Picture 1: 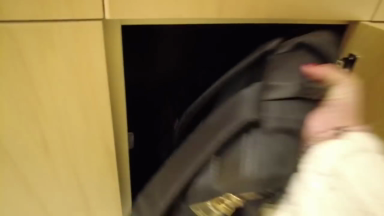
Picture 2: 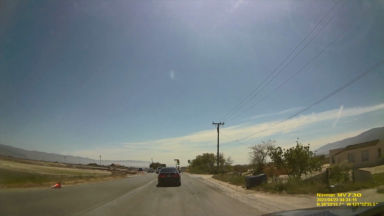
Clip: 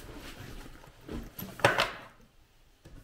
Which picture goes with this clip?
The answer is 1